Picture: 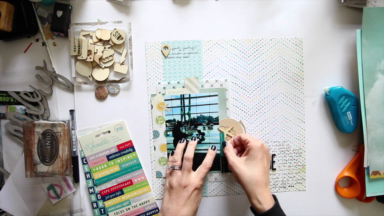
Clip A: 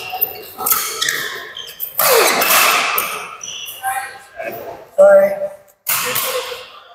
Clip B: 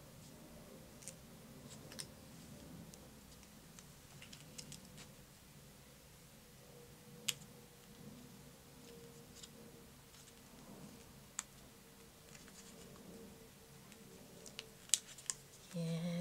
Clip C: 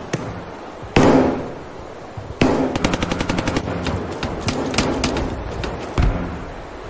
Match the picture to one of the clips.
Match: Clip B